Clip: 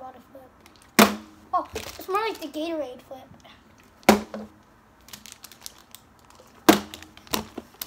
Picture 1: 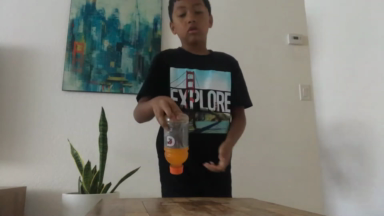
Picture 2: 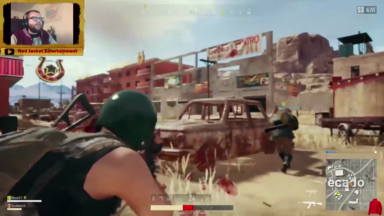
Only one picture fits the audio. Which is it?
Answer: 1